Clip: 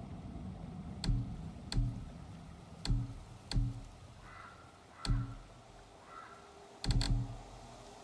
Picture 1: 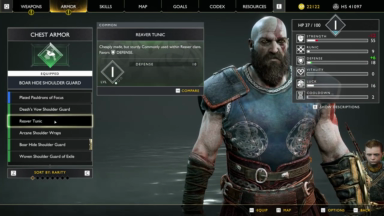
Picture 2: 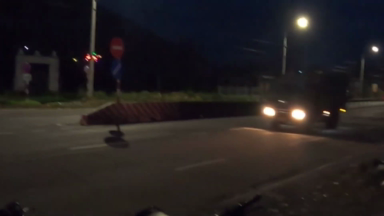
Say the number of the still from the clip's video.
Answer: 1